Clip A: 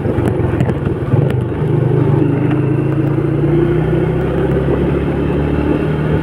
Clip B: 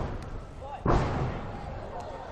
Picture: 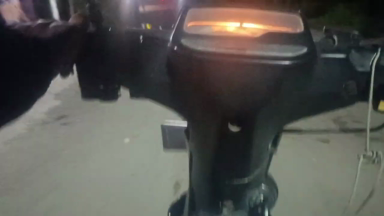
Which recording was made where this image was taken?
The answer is A